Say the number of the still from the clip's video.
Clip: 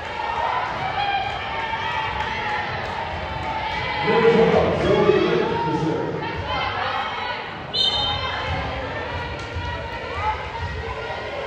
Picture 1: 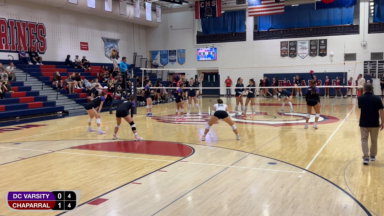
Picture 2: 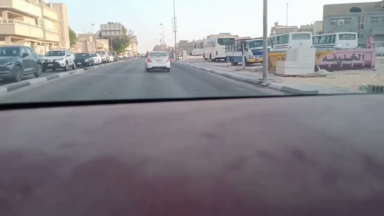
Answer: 1